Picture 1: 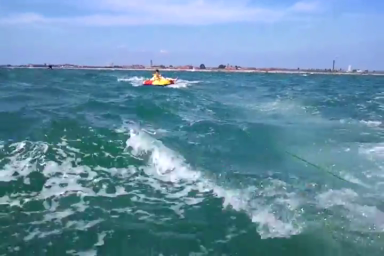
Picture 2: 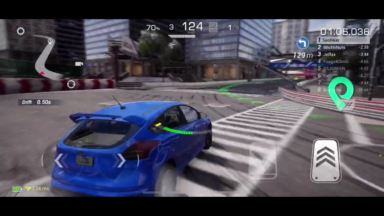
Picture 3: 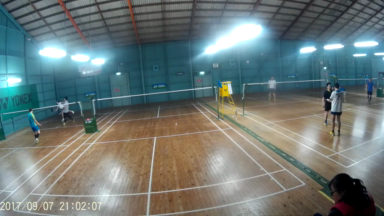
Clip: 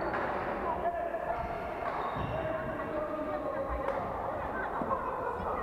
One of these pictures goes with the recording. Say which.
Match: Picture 3